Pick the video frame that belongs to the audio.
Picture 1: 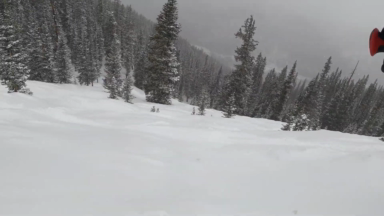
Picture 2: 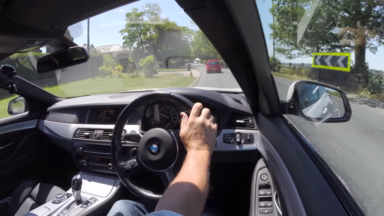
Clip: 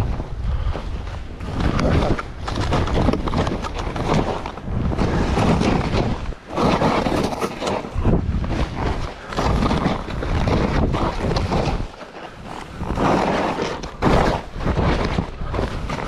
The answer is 1